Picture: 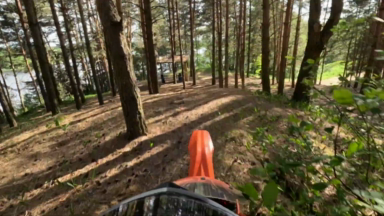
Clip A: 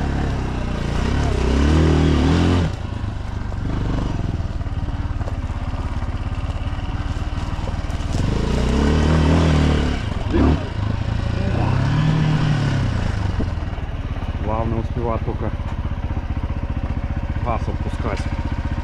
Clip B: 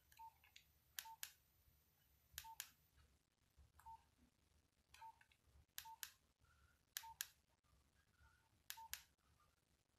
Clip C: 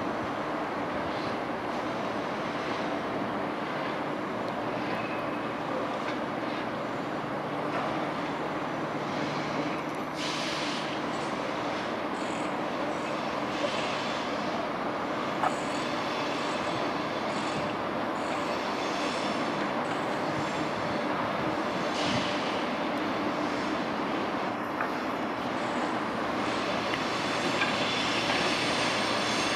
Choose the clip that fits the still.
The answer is A